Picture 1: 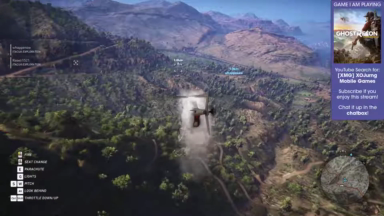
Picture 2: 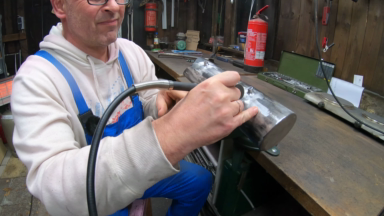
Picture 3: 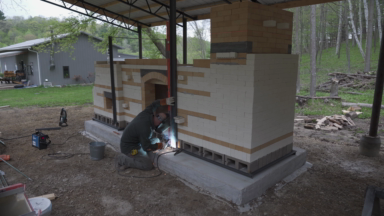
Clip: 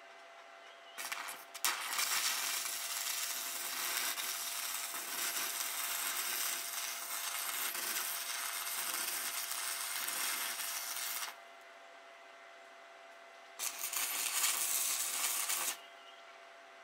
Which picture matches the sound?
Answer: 3